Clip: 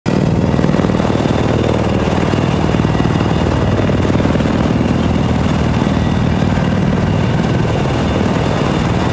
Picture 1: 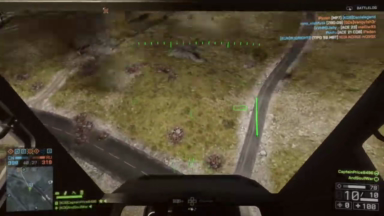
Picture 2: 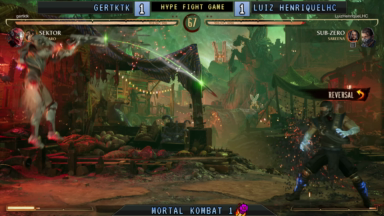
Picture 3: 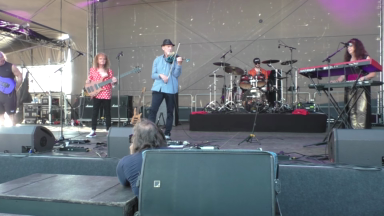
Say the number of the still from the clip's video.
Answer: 1